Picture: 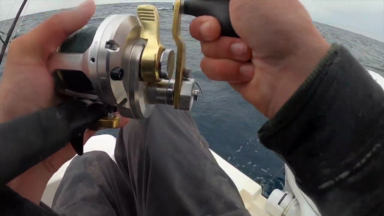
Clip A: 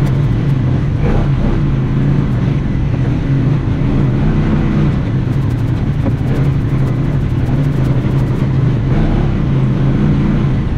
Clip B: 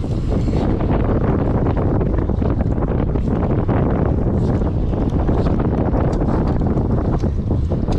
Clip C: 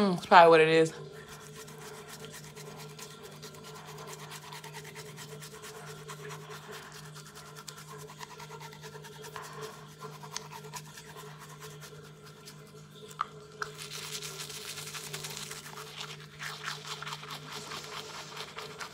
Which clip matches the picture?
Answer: B